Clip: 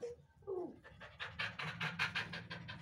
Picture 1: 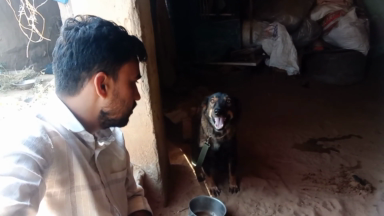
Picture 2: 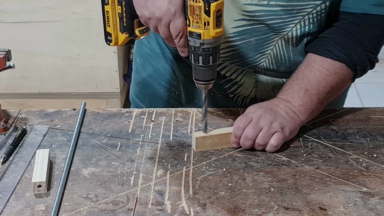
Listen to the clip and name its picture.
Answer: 1